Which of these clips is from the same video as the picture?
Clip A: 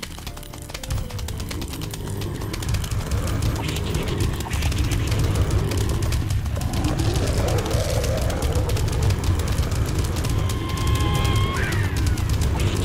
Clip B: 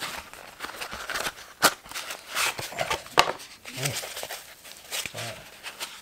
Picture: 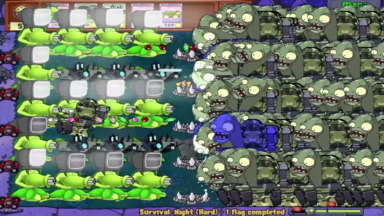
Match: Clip A